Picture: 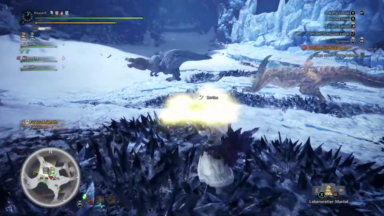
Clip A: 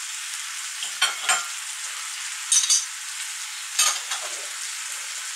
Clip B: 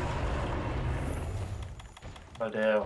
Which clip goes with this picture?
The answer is B